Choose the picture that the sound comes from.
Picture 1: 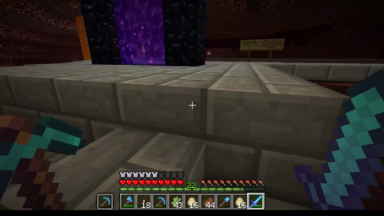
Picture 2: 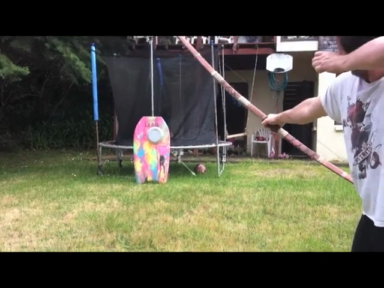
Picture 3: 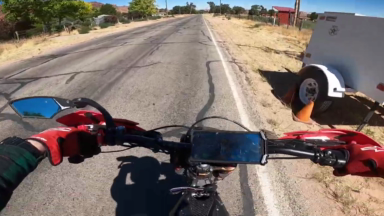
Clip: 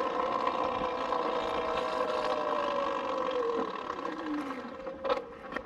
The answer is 3